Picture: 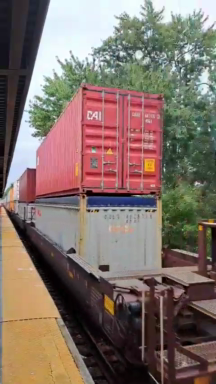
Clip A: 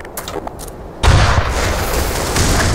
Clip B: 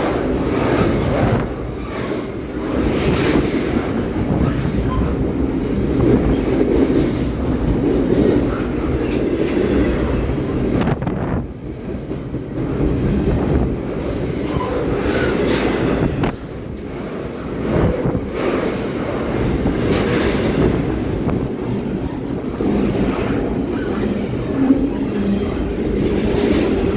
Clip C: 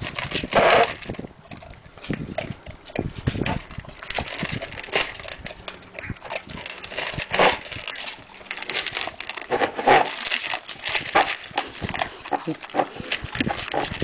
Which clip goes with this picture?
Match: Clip B